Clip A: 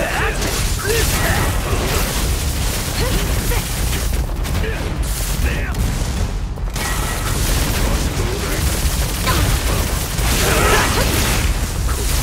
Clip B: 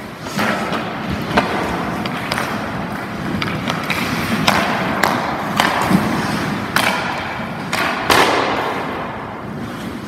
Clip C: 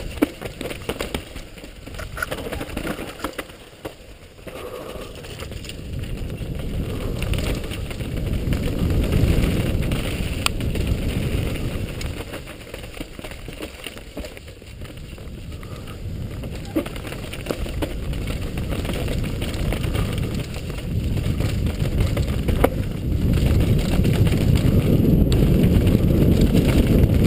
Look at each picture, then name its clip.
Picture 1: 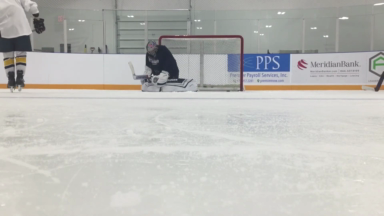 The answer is B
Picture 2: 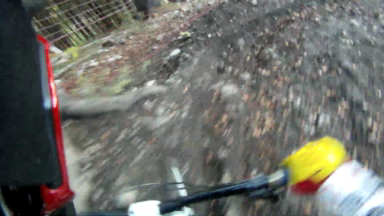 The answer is C